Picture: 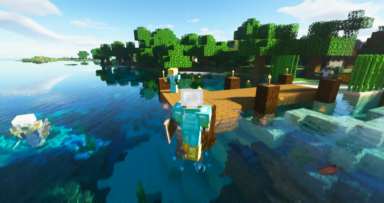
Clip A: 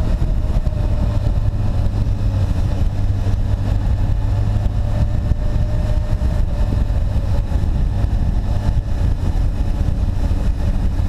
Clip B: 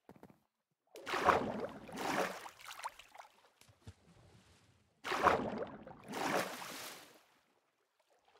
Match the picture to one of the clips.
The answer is B